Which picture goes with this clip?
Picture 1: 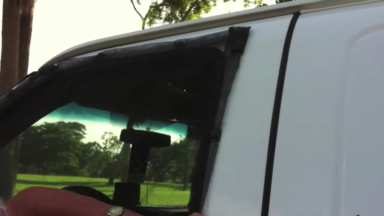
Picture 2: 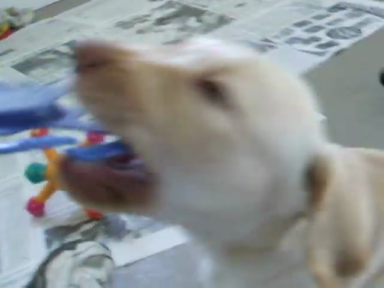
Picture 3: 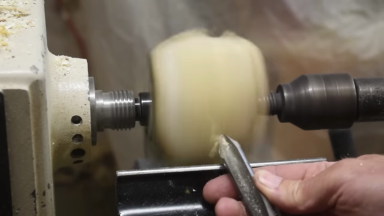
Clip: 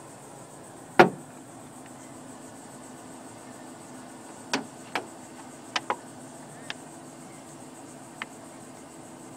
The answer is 1